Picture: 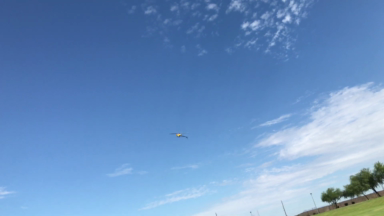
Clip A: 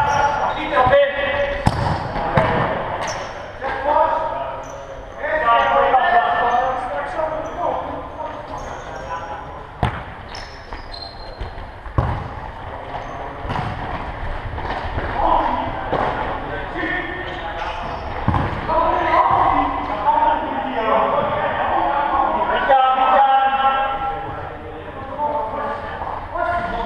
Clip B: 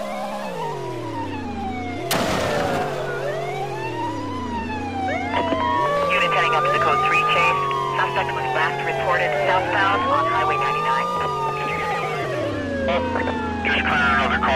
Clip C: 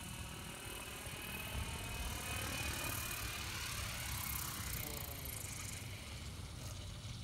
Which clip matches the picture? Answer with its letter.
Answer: C